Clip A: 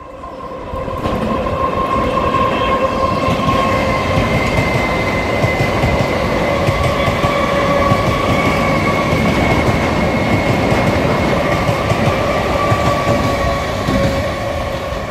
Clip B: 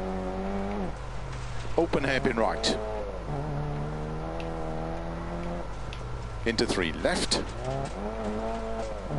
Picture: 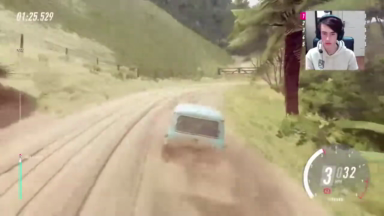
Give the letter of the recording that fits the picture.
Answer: B